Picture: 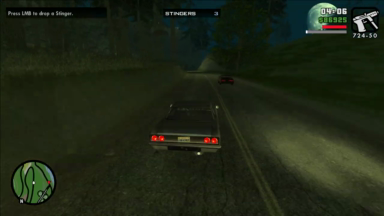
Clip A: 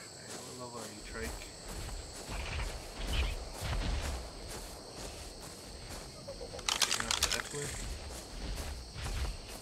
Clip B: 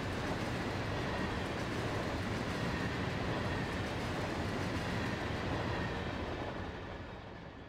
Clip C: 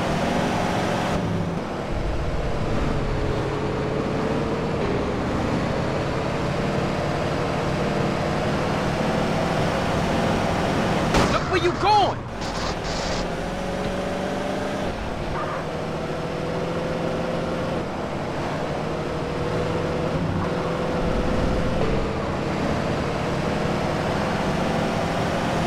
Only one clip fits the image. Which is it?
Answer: C